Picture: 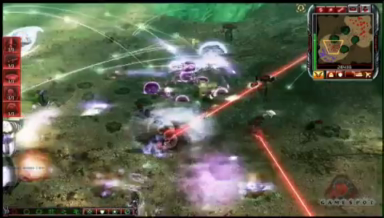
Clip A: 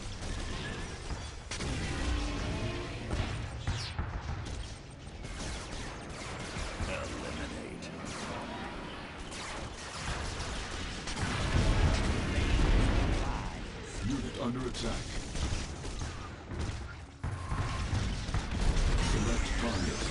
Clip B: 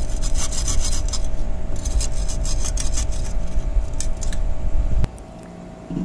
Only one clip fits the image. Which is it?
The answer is A